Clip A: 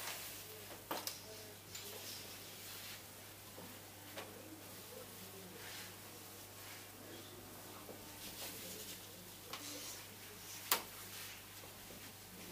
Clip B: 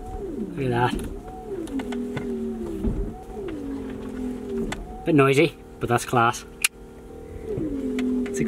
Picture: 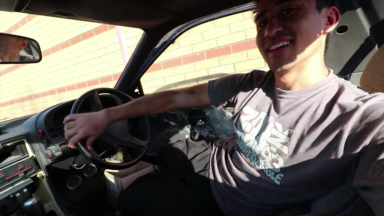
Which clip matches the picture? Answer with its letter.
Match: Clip B